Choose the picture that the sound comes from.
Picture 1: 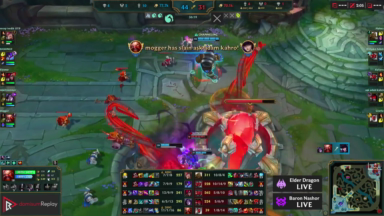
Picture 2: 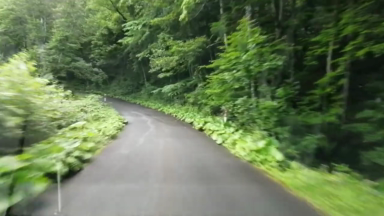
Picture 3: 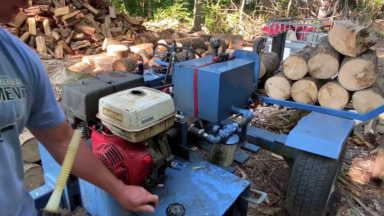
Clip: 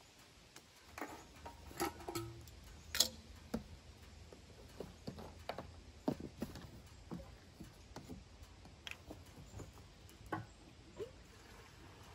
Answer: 3